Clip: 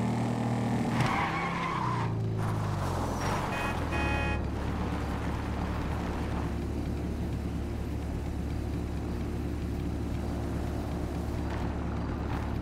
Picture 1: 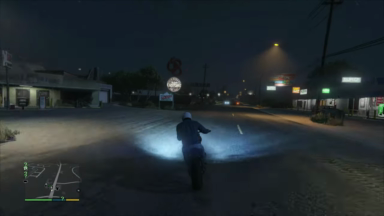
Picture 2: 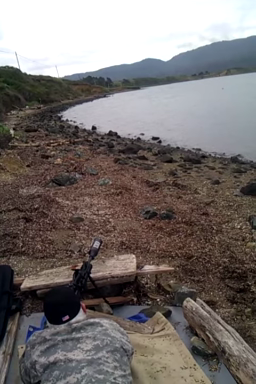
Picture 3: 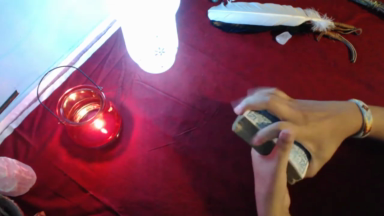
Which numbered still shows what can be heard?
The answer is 1